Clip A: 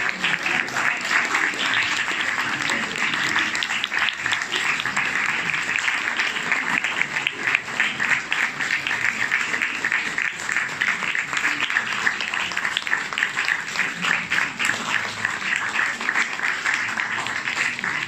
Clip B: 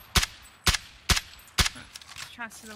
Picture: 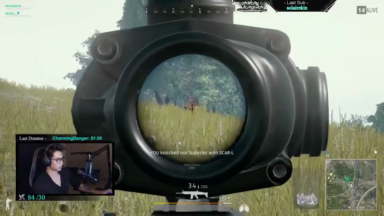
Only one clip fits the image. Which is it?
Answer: B